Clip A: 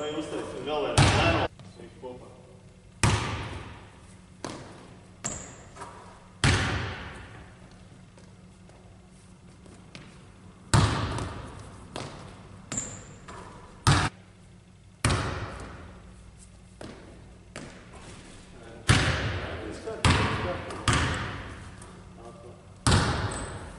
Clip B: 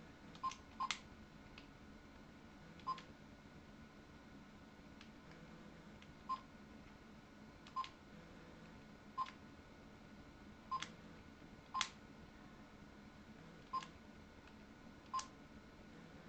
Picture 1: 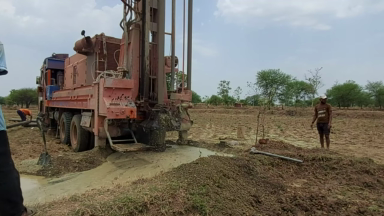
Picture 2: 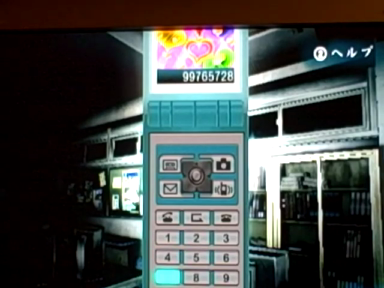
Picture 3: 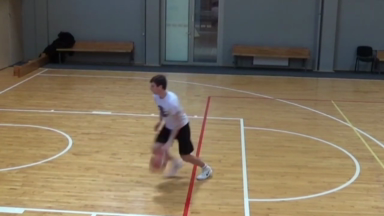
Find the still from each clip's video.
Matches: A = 3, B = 2